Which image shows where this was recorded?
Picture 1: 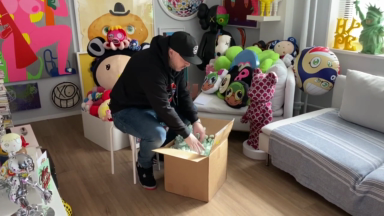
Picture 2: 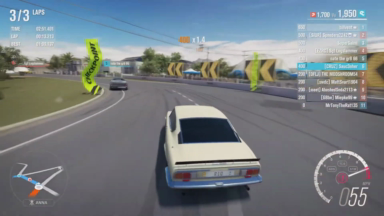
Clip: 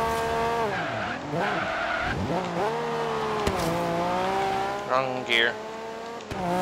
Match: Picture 2